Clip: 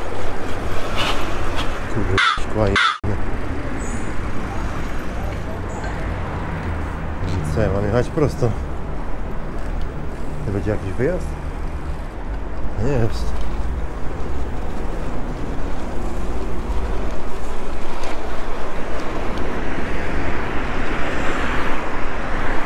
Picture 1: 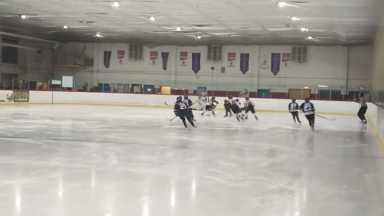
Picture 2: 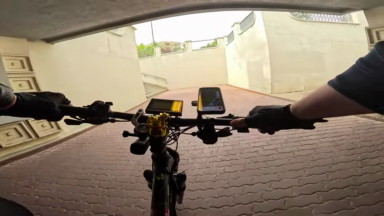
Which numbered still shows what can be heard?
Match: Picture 2